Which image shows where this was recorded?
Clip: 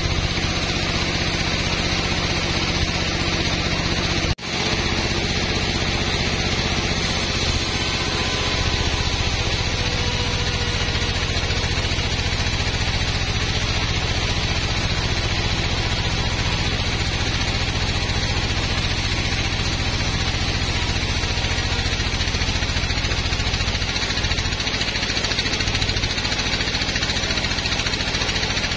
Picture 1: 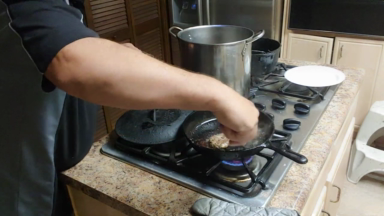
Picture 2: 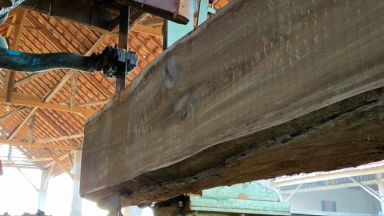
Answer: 2